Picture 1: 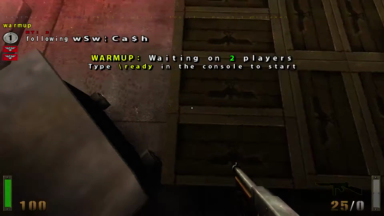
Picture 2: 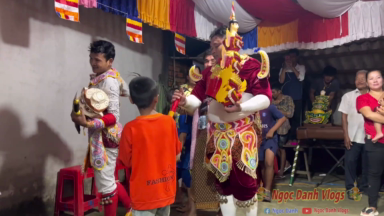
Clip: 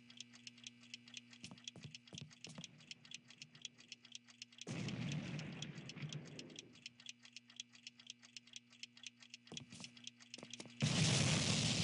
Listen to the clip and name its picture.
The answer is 1